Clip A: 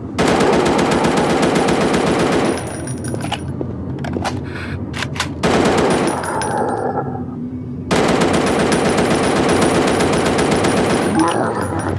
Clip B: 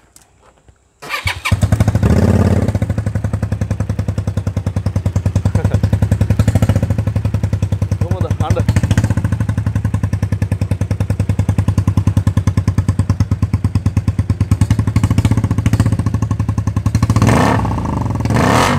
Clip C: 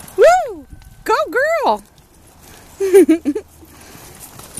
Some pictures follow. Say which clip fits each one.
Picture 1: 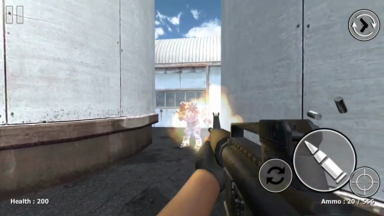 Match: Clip A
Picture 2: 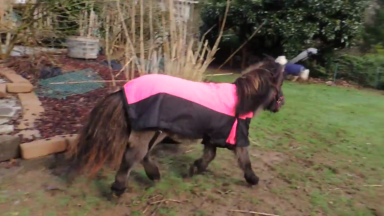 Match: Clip C